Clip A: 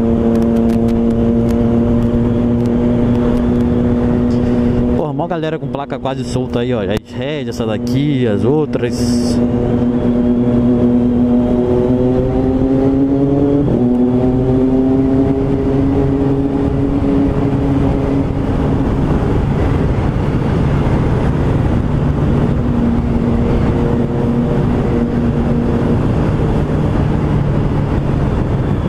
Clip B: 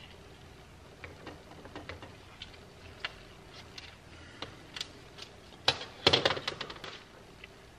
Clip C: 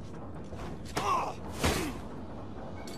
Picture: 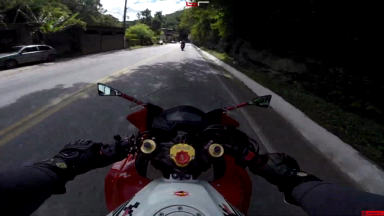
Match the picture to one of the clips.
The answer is A